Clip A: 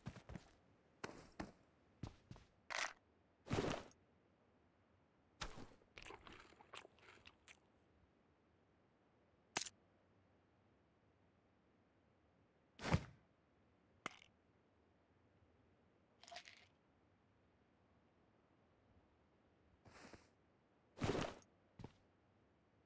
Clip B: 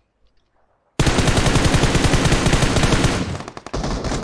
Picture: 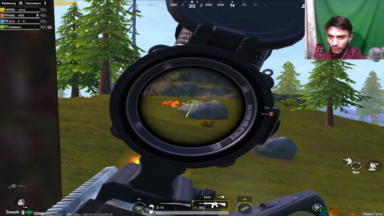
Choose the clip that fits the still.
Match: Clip B